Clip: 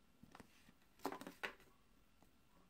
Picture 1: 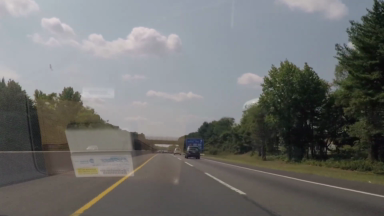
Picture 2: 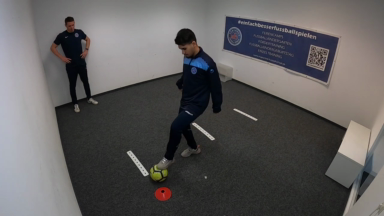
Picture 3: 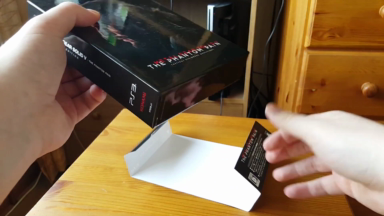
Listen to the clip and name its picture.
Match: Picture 3